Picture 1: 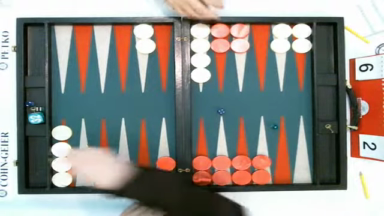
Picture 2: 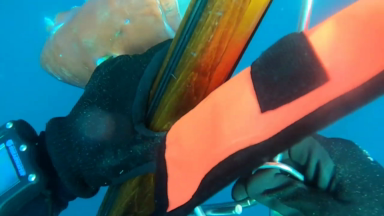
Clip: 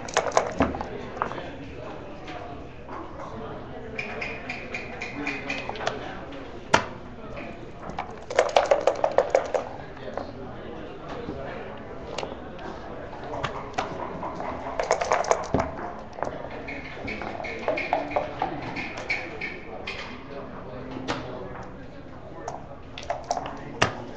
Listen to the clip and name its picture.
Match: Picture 1